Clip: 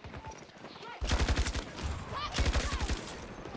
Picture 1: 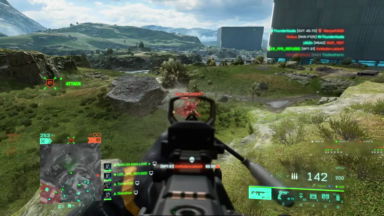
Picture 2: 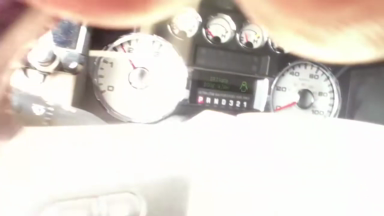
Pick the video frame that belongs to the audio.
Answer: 1